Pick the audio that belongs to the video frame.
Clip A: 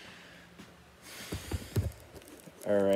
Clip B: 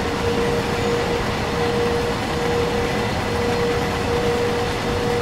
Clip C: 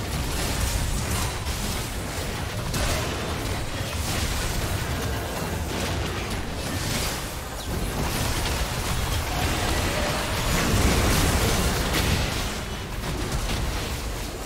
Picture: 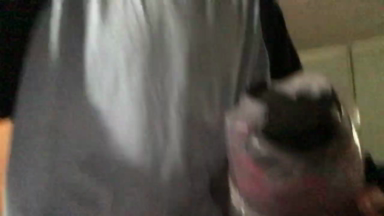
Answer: A